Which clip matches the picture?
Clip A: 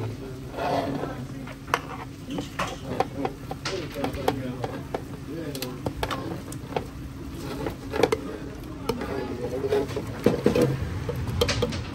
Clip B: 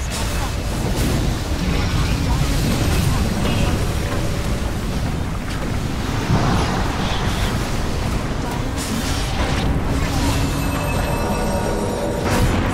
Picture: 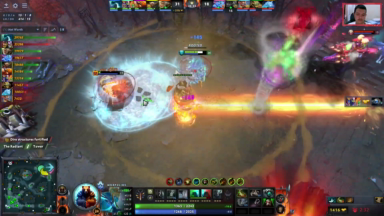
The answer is B